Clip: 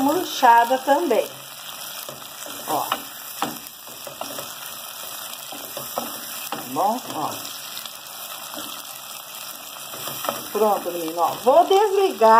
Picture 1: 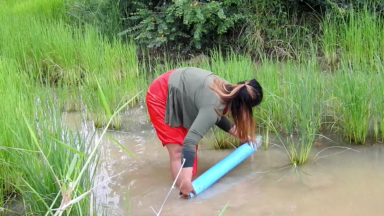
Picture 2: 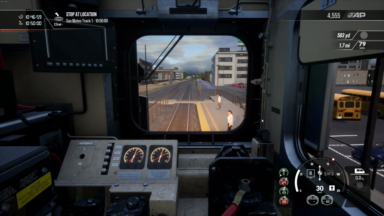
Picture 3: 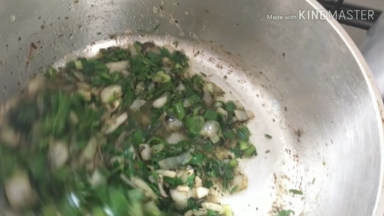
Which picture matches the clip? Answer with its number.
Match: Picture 3